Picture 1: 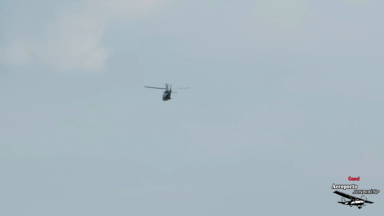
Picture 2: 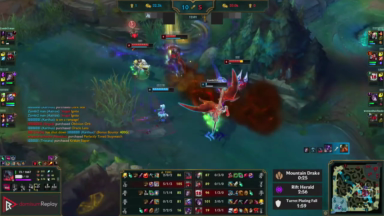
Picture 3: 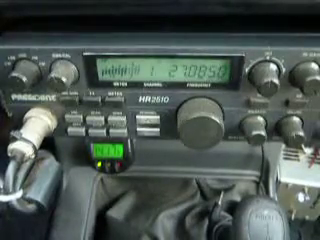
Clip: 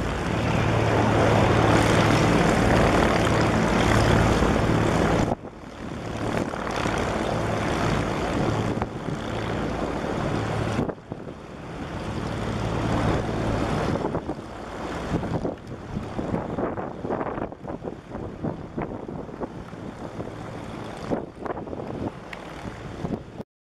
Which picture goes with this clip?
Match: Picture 1